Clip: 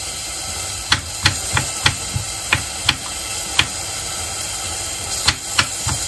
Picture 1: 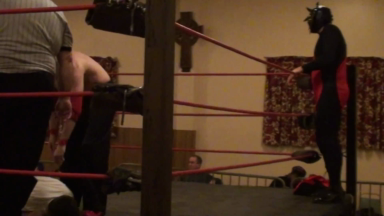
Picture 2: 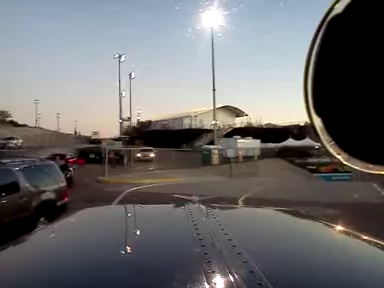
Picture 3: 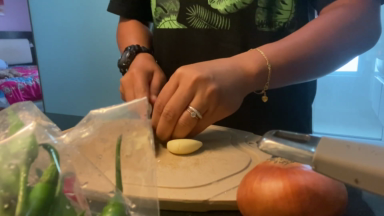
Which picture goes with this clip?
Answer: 3